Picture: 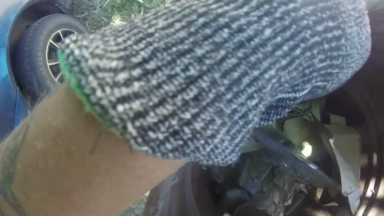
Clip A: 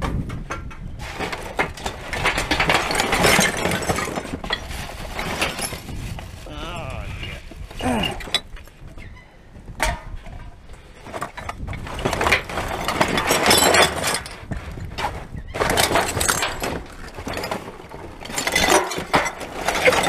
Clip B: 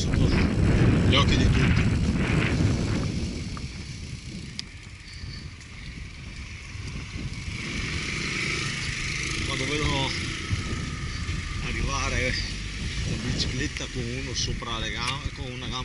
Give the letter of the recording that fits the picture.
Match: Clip A